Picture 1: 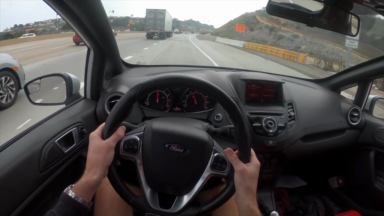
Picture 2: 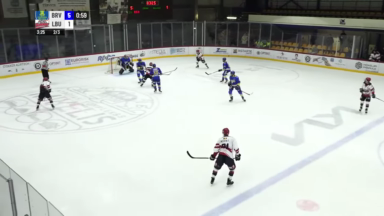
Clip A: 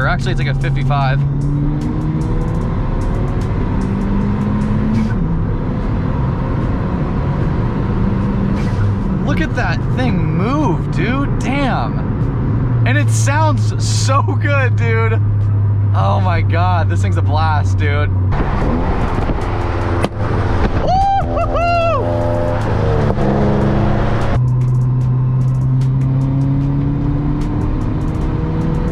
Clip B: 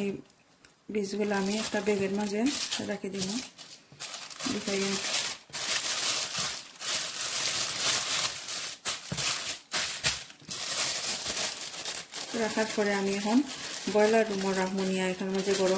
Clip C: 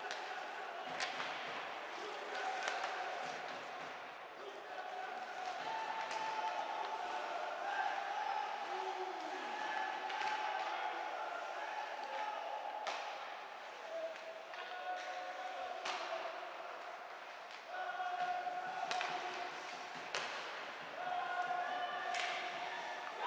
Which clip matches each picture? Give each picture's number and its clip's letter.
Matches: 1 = A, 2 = C